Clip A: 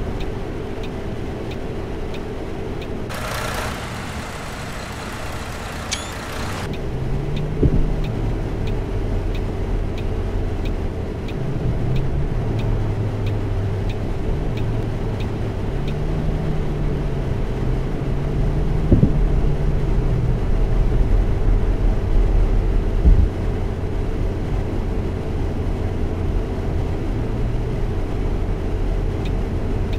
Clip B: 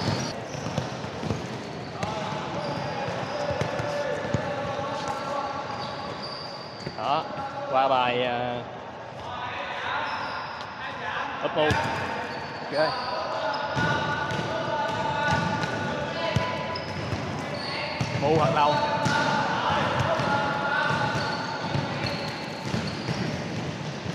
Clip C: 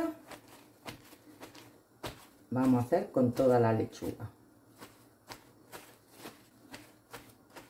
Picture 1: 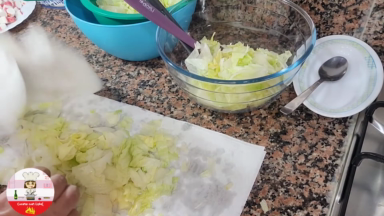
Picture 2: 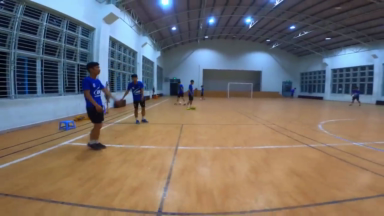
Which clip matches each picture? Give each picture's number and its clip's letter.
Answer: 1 C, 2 B